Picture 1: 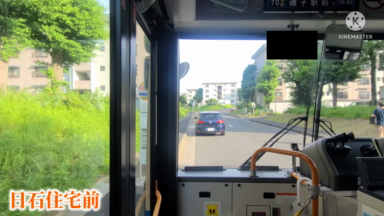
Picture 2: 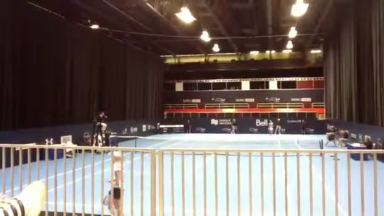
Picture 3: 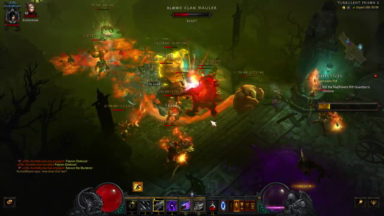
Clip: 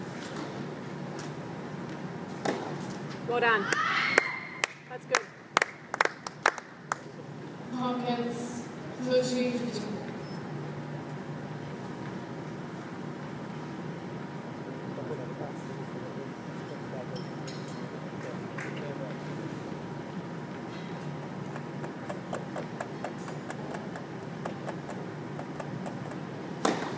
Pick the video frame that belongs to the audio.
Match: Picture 2